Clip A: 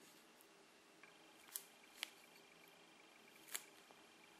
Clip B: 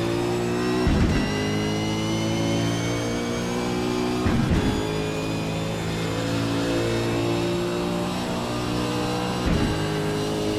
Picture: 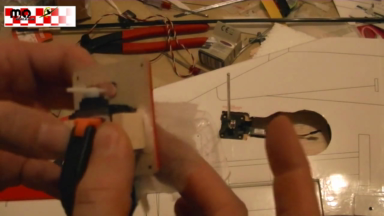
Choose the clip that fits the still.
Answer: A